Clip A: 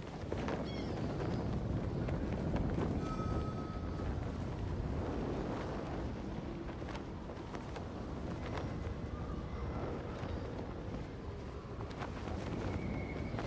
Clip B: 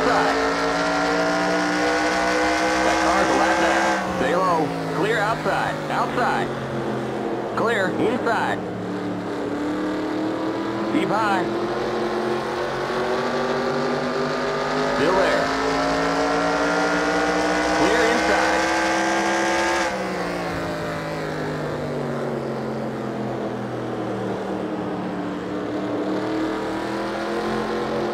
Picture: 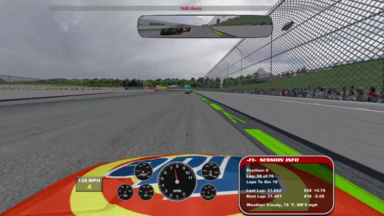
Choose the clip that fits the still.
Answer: B